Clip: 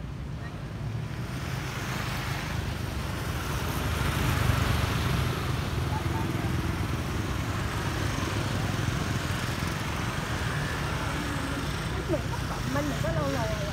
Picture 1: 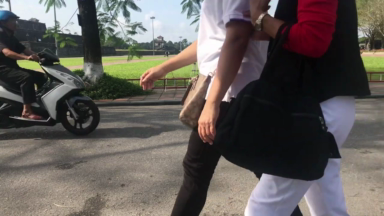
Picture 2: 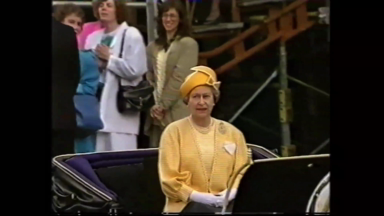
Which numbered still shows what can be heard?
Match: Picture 1